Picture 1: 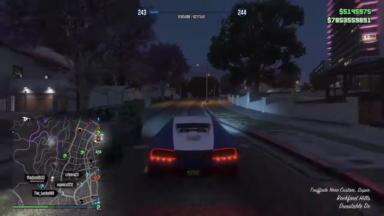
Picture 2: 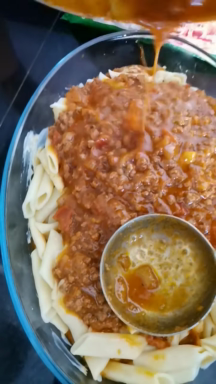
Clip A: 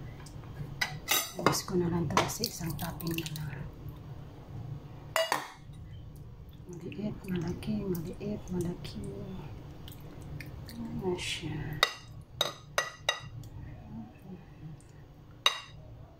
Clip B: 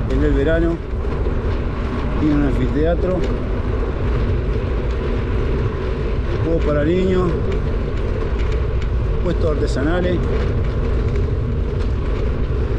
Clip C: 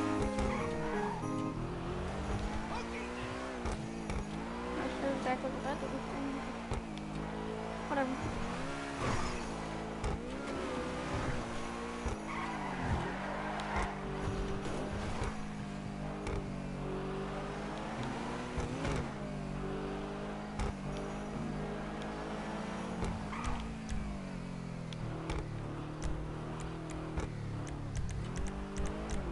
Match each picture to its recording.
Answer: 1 C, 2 A